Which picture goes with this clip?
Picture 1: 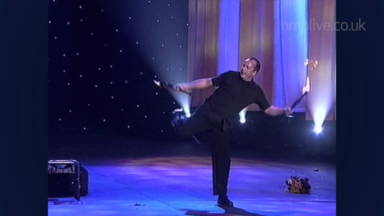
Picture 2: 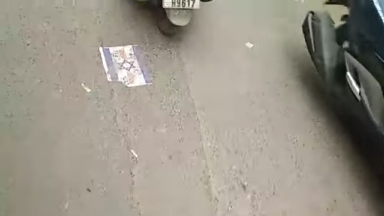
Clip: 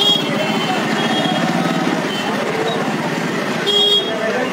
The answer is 2